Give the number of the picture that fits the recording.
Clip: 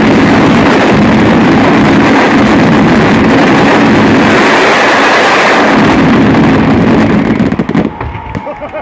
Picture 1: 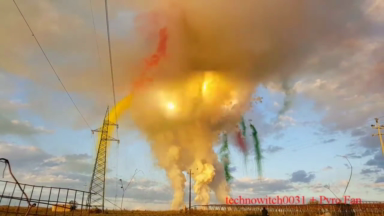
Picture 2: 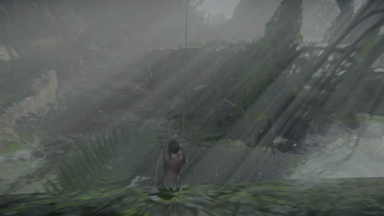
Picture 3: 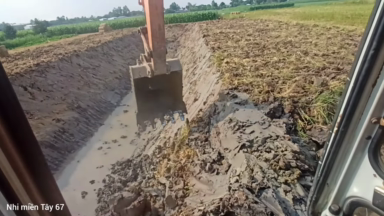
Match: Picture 1